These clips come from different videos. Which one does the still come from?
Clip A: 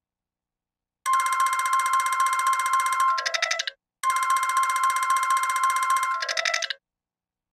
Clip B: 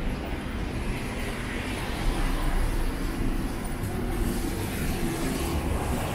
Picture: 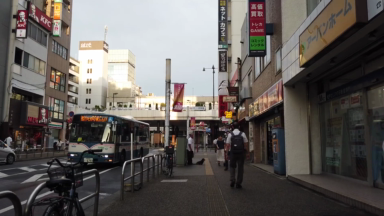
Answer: B